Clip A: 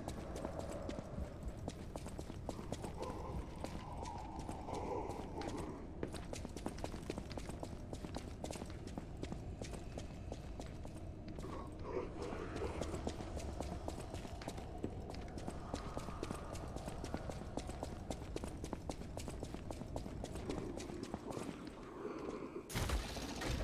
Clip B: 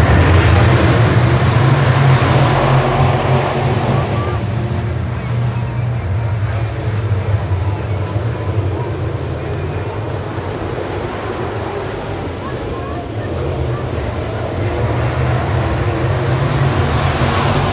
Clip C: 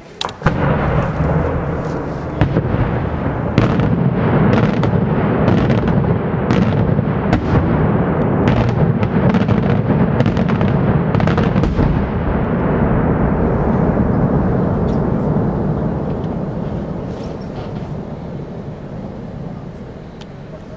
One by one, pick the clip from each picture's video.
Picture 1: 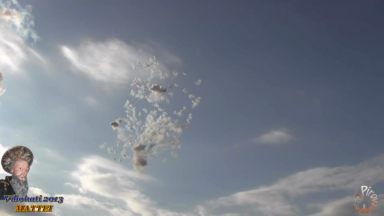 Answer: C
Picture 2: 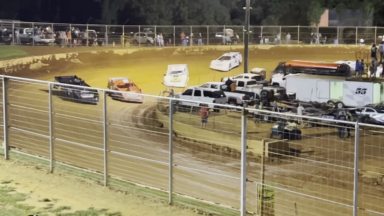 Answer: B